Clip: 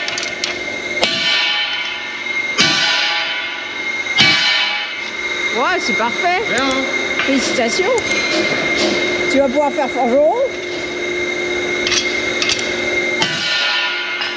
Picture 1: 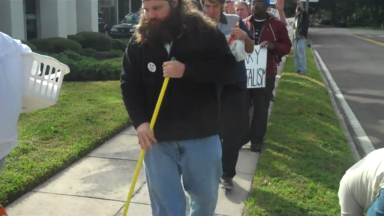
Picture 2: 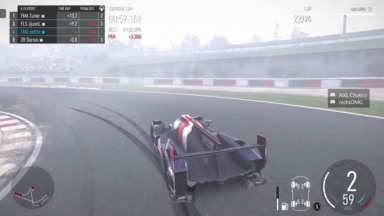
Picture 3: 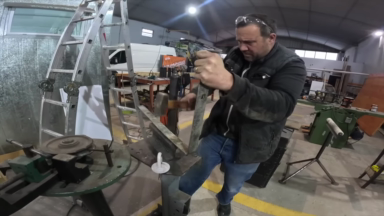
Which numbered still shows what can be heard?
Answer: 3